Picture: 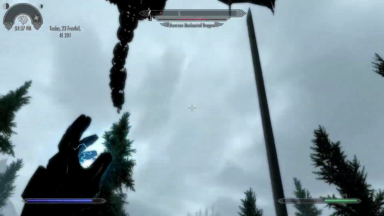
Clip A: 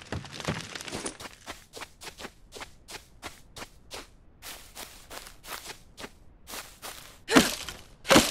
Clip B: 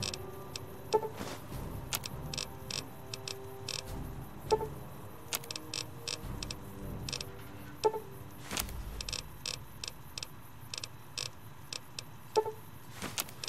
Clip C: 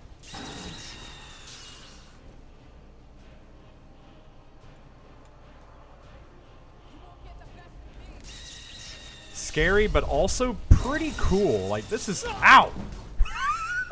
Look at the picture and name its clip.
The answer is C